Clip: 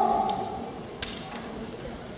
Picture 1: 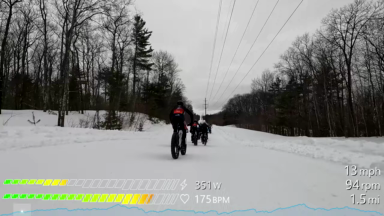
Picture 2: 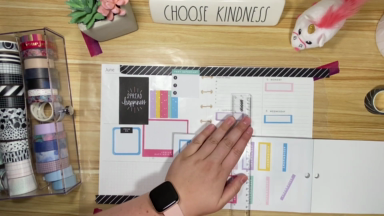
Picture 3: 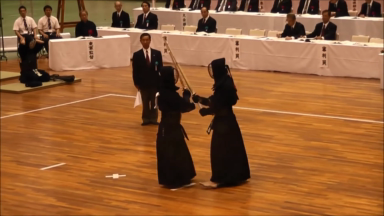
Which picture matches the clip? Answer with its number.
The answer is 3